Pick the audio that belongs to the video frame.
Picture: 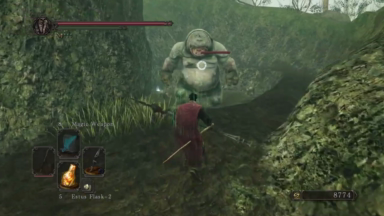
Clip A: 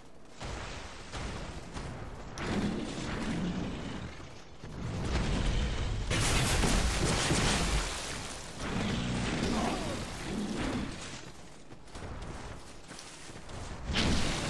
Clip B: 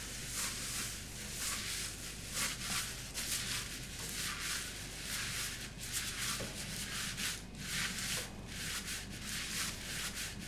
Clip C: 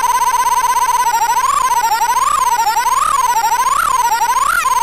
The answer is A